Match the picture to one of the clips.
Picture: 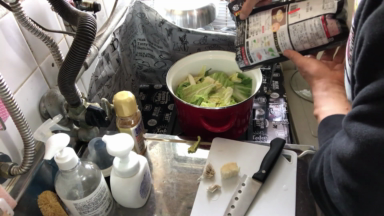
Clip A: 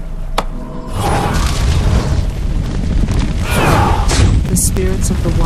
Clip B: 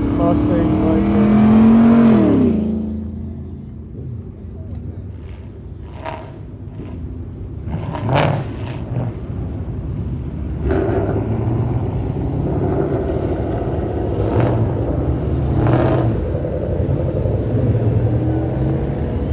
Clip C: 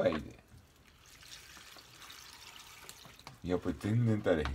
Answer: C